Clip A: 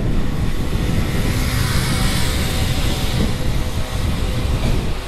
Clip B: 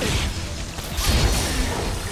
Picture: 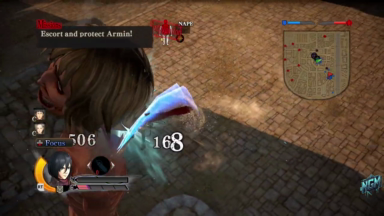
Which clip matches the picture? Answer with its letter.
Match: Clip B